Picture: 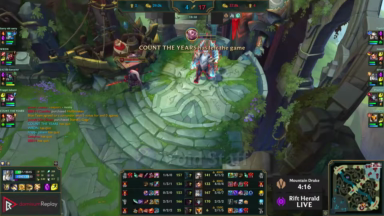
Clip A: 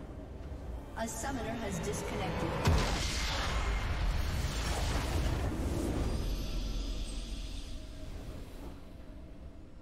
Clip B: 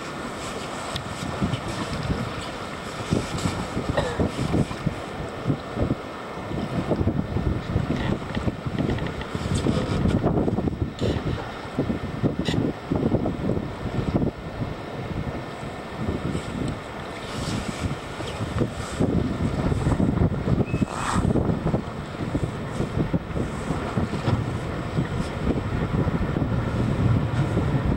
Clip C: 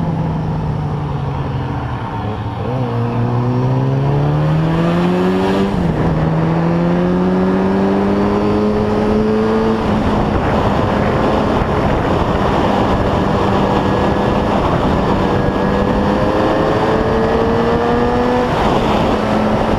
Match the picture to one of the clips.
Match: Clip A